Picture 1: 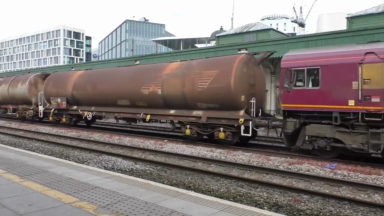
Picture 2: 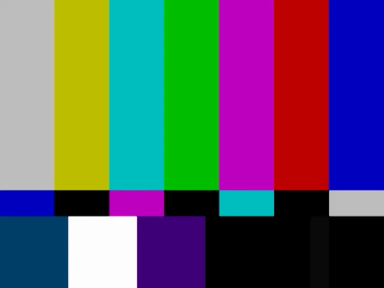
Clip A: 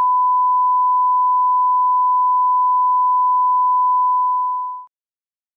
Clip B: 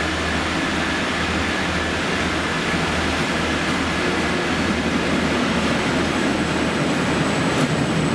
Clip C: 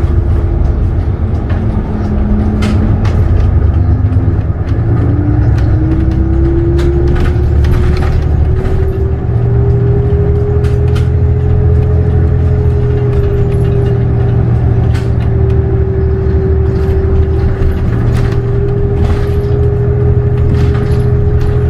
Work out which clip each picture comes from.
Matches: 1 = B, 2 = A